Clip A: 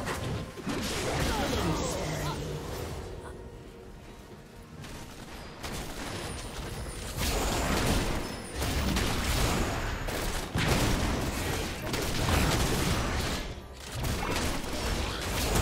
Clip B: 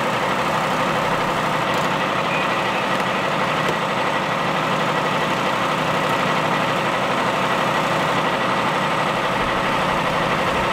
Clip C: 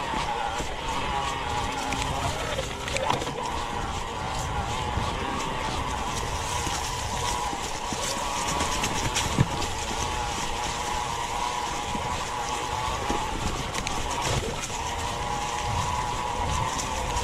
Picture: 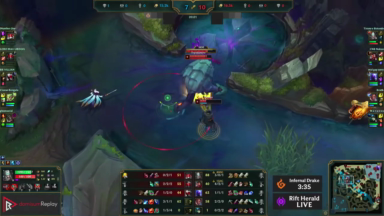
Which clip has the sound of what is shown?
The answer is A